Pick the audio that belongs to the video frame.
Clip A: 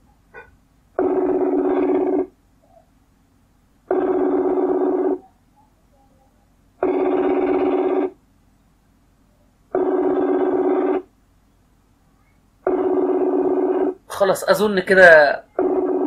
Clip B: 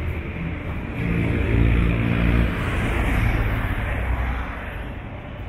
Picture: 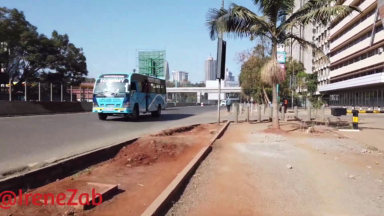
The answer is B